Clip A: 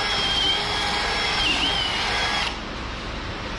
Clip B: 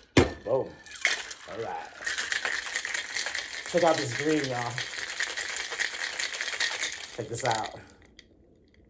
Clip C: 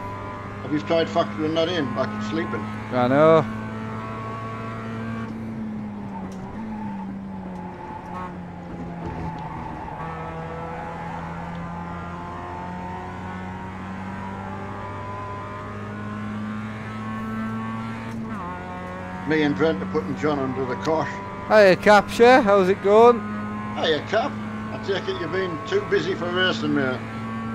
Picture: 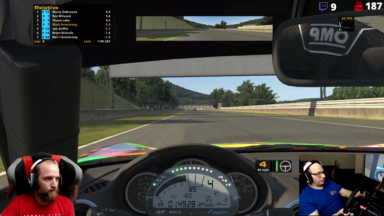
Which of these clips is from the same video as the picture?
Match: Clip C